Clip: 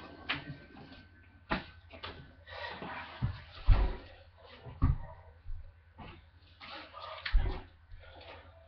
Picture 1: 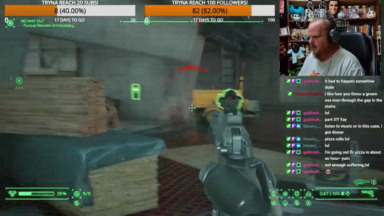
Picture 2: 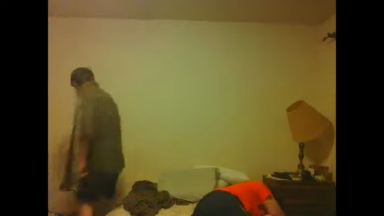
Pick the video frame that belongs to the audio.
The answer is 2